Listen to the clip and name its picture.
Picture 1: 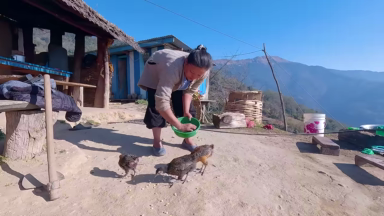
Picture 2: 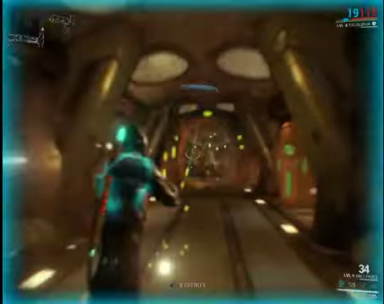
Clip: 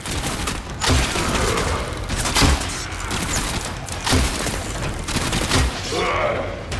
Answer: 2